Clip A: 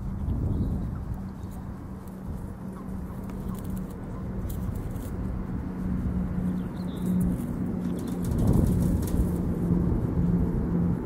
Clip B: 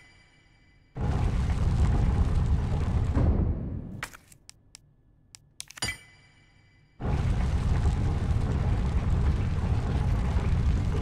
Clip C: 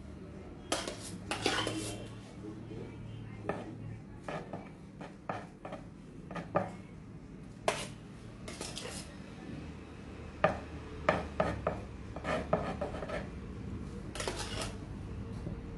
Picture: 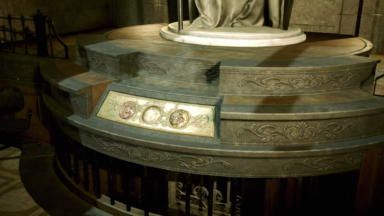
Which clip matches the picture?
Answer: B